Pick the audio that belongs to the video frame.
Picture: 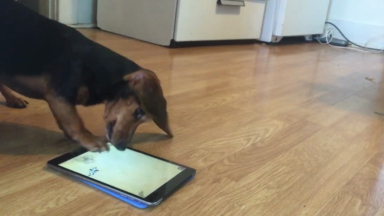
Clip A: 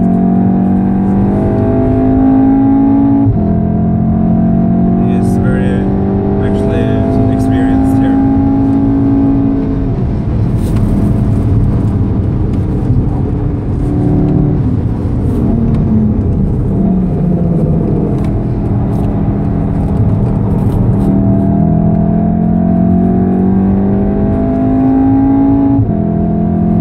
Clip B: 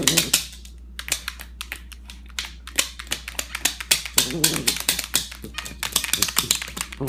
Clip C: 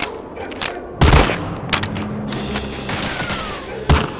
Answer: B